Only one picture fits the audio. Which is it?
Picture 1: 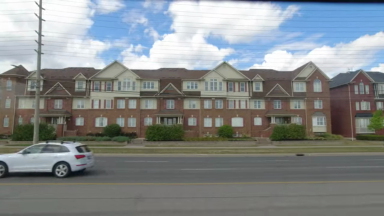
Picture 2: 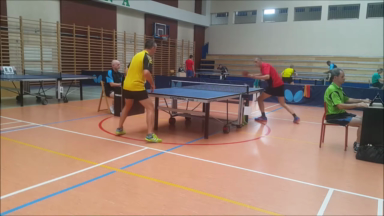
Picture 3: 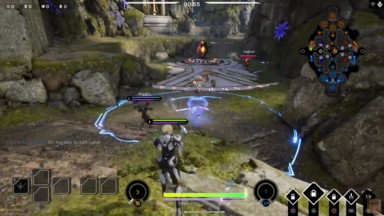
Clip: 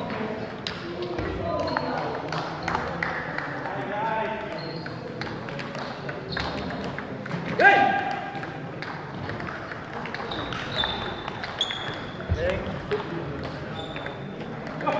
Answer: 2